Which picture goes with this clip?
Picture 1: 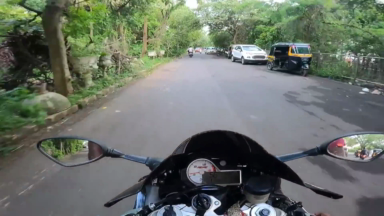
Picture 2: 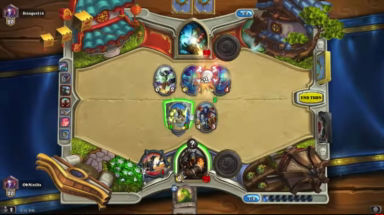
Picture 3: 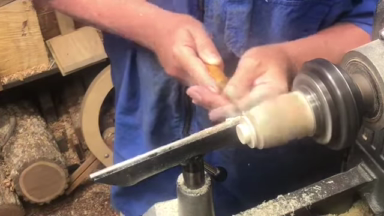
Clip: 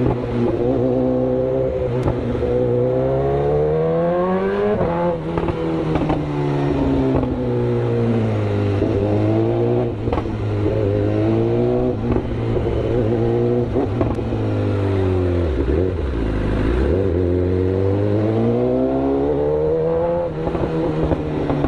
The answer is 1